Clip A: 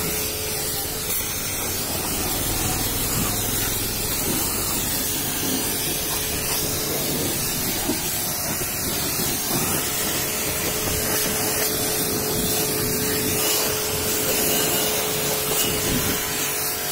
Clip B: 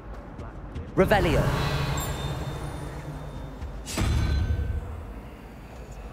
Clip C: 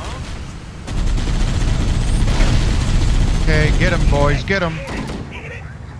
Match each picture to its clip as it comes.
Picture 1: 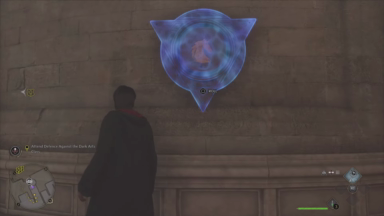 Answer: B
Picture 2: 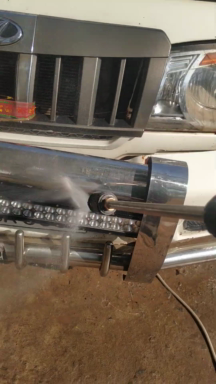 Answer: A